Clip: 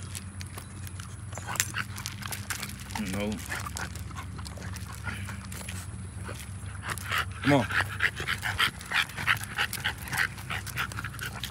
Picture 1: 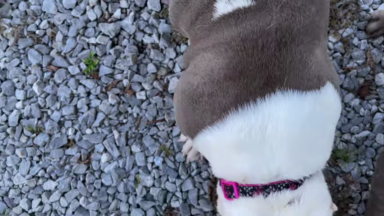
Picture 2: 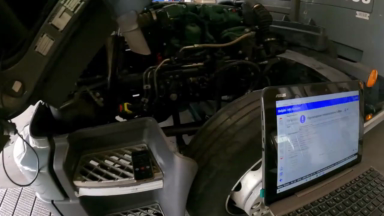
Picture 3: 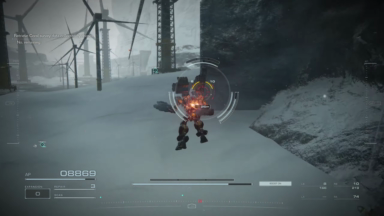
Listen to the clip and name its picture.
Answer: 1